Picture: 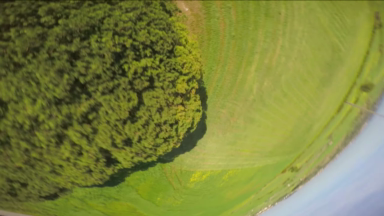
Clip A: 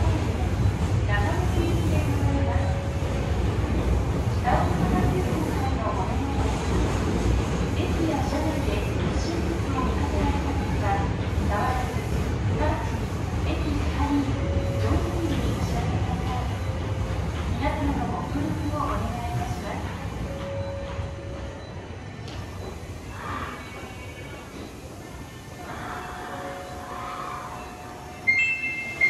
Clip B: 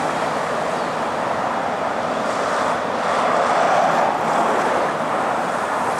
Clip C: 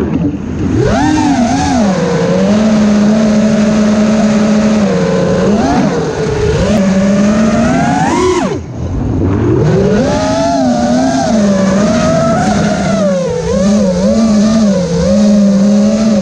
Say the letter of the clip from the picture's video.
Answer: C